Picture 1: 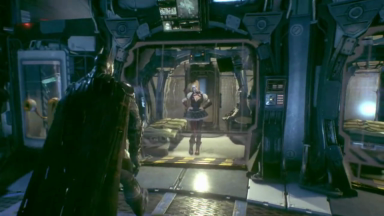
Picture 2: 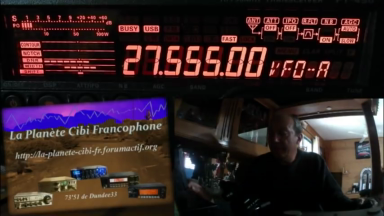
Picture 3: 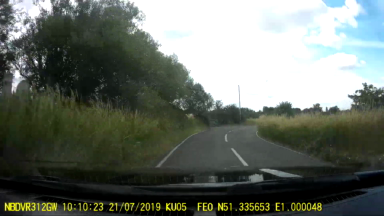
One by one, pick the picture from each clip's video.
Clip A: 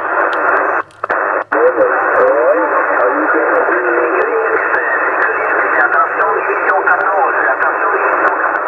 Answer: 2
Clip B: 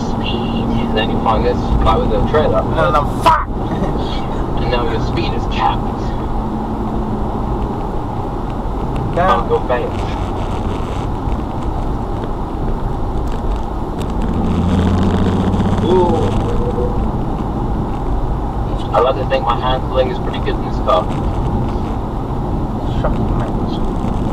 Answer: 3